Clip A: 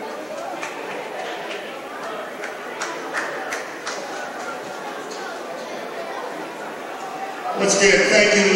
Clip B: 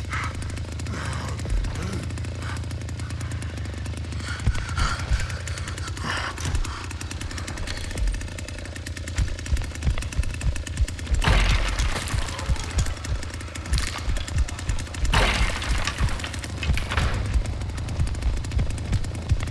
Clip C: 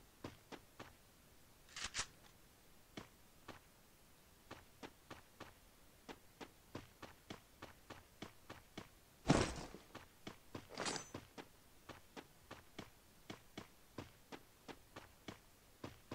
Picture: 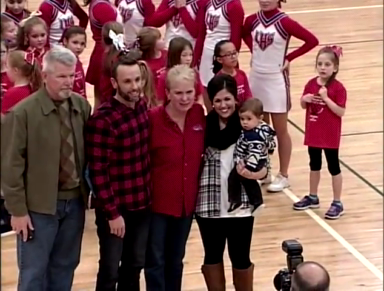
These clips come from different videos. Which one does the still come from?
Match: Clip A